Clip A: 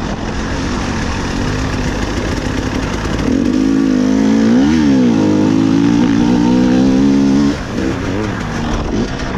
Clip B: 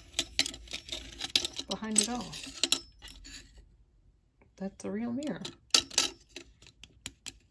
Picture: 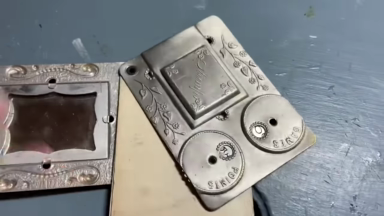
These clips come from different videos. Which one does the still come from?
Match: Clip B